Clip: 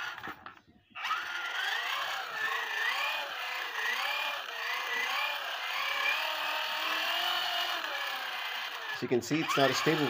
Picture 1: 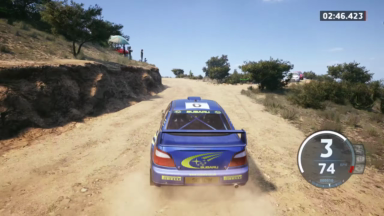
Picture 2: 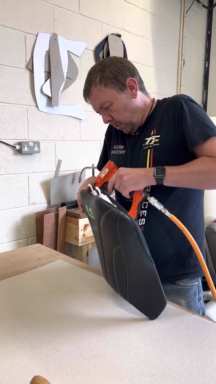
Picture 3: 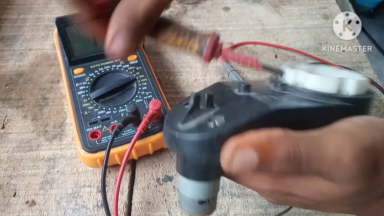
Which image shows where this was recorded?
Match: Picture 3